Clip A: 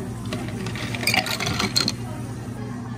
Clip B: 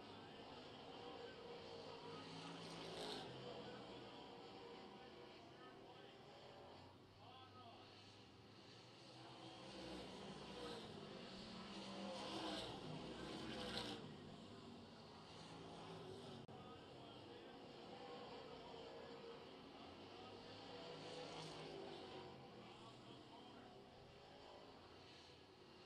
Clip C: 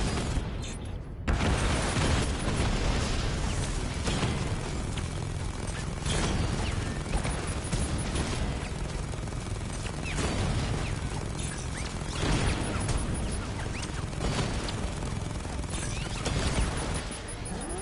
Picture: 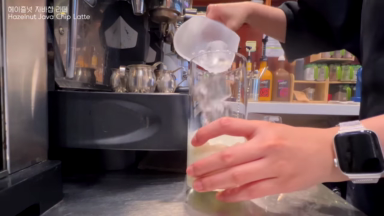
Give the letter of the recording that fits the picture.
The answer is A